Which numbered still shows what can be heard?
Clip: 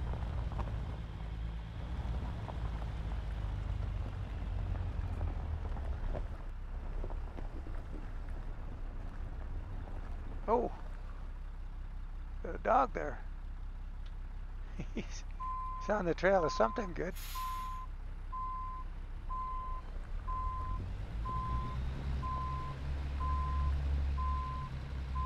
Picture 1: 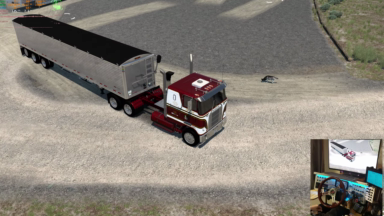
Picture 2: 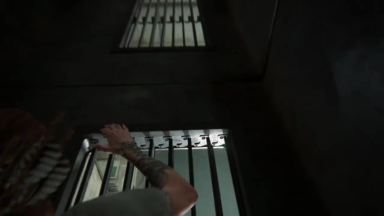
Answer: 1